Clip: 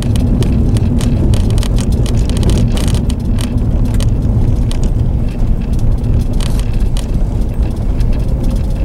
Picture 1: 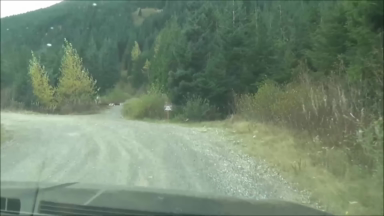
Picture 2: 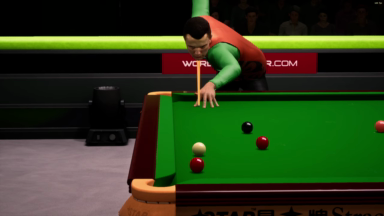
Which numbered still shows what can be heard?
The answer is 1